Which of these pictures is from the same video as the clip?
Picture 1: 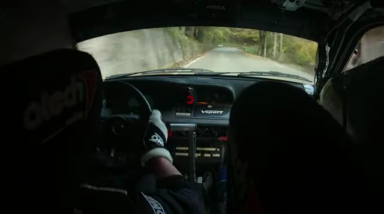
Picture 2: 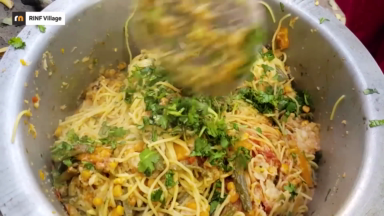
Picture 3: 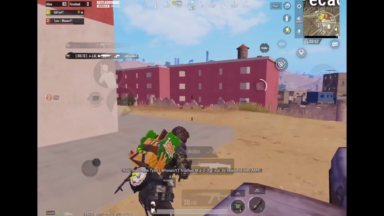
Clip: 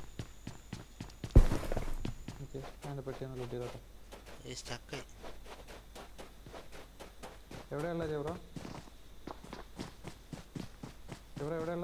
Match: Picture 3